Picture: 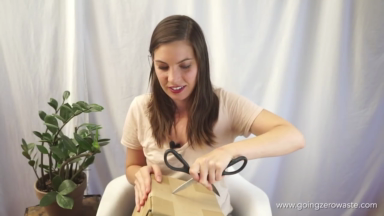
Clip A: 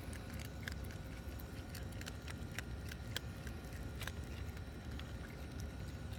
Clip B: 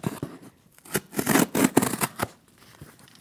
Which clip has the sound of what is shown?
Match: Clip B